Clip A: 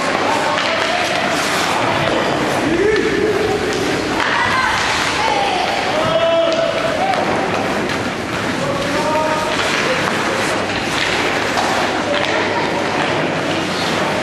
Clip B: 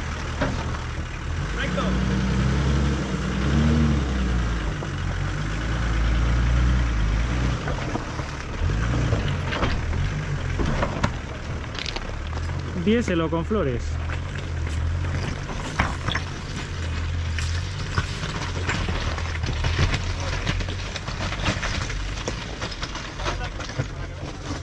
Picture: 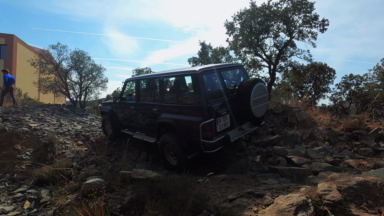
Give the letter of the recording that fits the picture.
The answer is B